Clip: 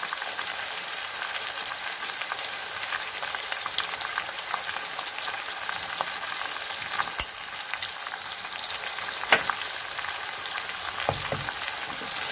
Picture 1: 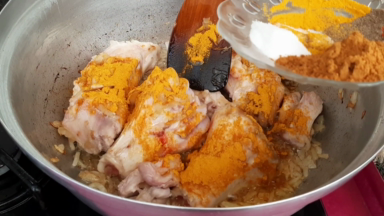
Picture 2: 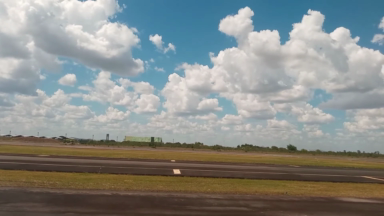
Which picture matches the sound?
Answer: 1